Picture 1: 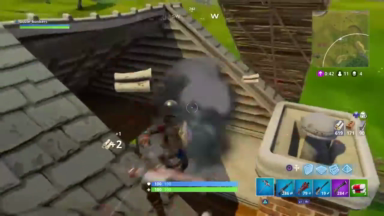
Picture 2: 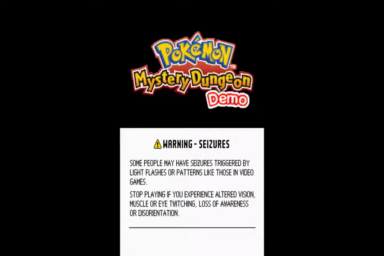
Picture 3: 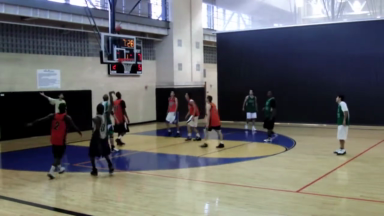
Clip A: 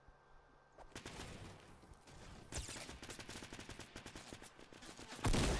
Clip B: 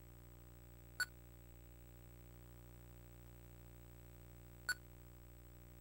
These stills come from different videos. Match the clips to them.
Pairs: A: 1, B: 2